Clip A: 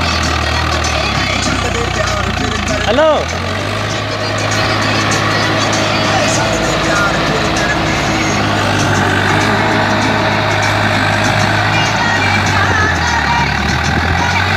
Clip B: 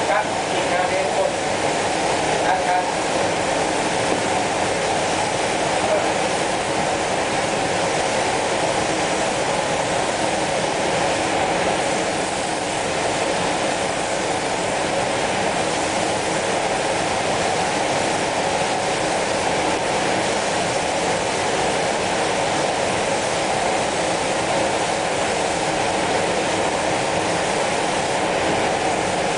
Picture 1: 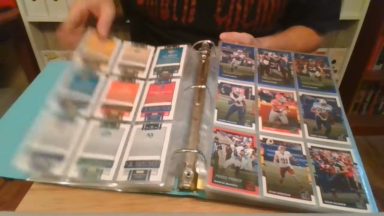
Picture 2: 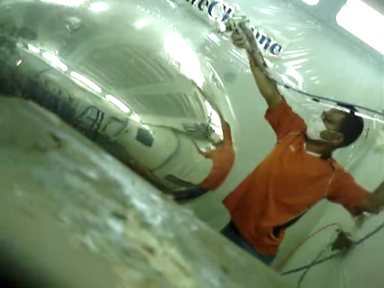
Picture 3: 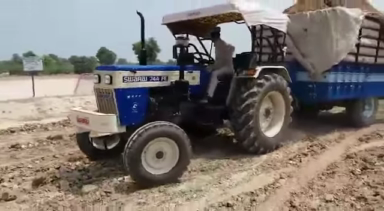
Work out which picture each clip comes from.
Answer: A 3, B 2